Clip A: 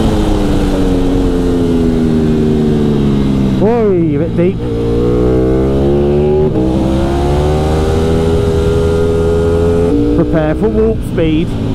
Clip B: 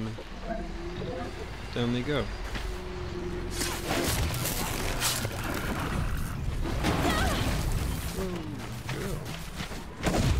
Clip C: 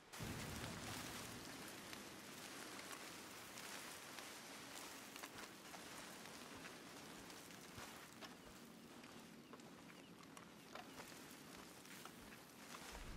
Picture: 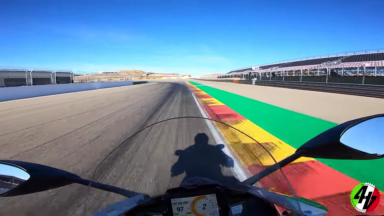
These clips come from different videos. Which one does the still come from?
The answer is A